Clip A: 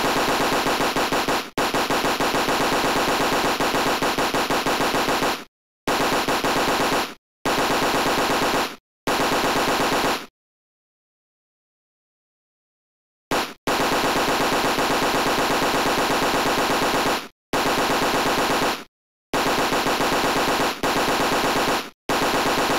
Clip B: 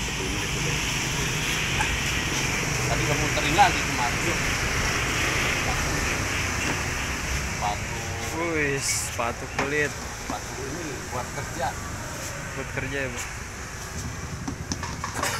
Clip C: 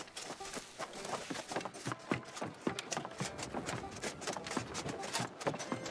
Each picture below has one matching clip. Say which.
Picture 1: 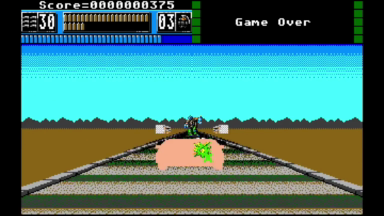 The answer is A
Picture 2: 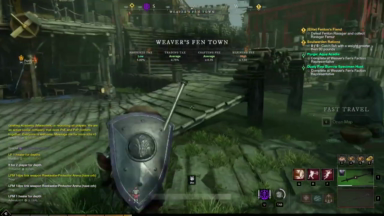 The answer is C